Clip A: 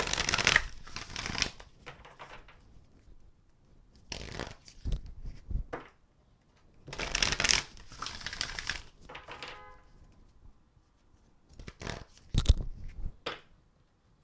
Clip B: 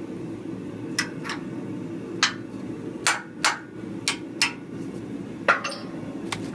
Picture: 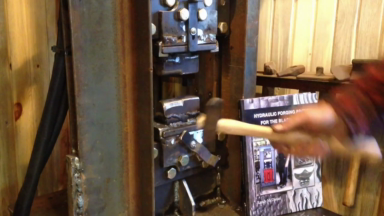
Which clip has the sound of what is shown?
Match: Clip B